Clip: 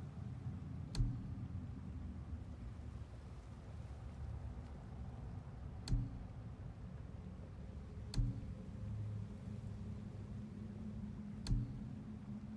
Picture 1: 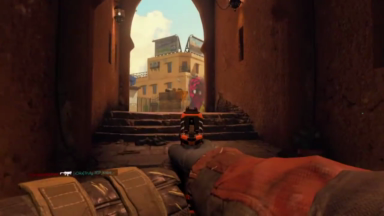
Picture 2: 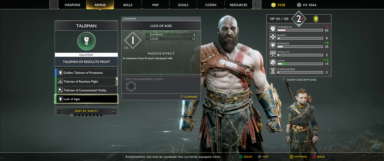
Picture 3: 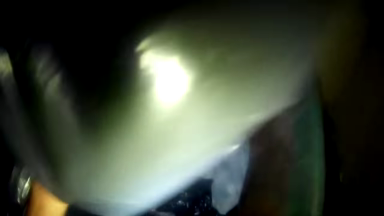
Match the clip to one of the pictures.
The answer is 2